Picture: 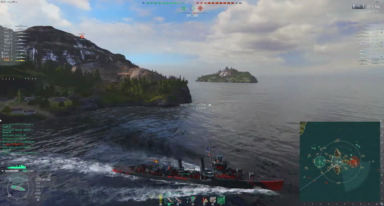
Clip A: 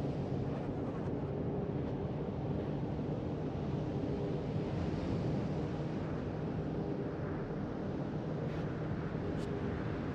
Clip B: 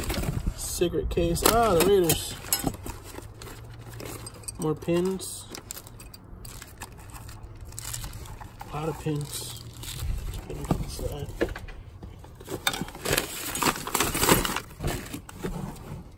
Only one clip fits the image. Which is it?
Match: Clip A